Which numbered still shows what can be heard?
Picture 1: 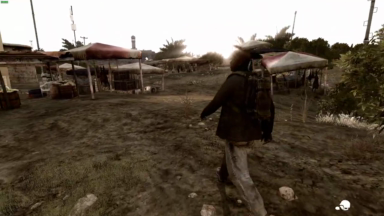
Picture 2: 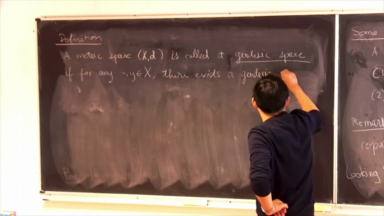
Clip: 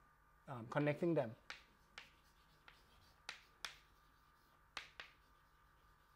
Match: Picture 2